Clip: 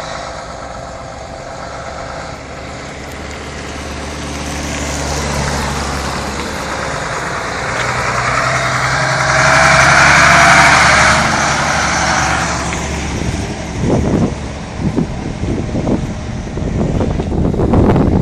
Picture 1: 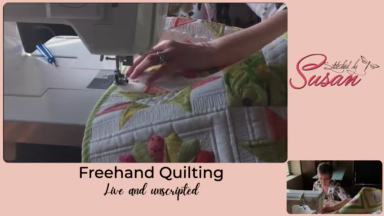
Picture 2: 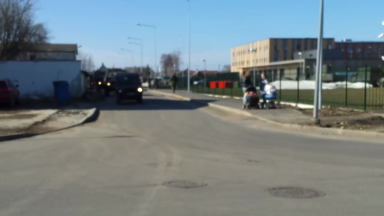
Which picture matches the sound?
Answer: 2